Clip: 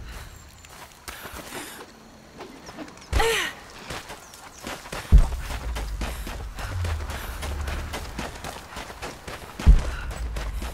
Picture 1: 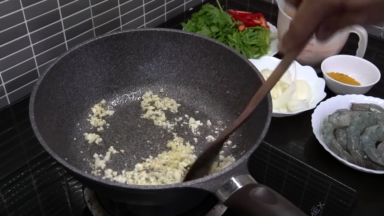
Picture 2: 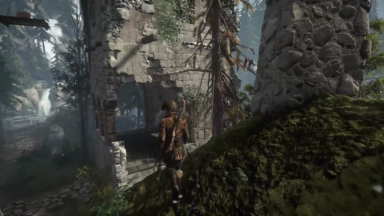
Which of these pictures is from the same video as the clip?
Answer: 2